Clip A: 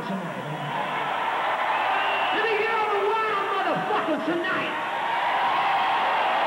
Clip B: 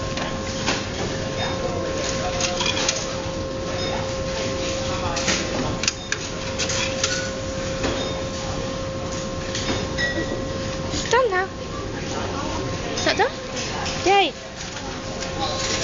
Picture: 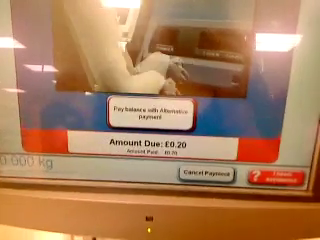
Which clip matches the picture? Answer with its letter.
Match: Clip B